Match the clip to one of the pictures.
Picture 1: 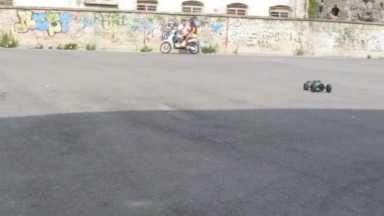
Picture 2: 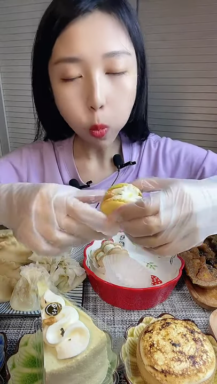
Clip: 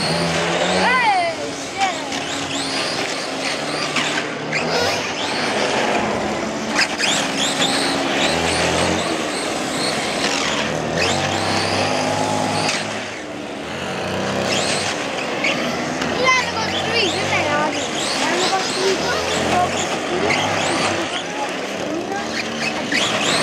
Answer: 1